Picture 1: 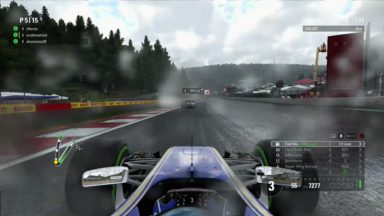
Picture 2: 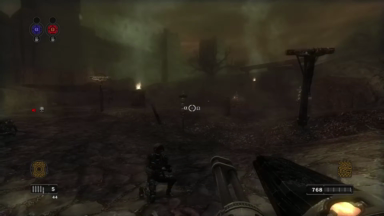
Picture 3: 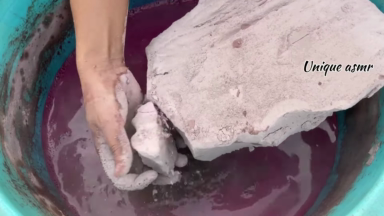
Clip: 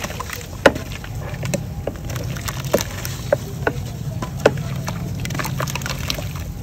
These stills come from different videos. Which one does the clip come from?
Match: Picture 3